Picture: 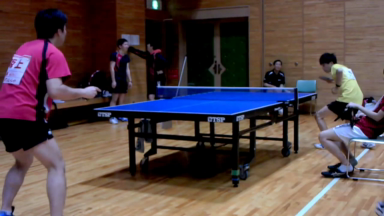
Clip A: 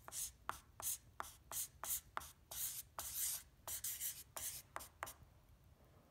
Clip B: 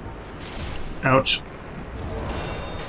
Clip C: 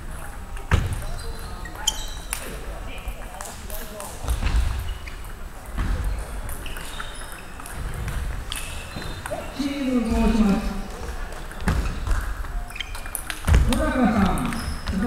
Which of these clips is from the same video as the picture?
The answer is C